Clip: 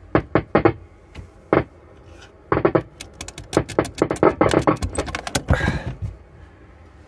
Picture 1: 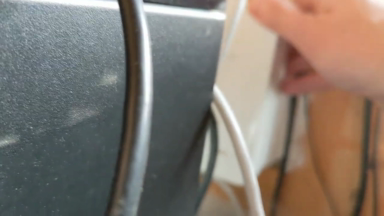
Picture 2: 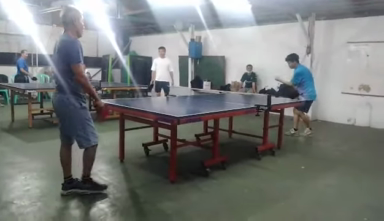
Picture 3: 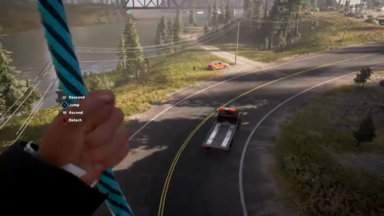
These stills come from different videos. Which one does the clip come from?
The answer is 1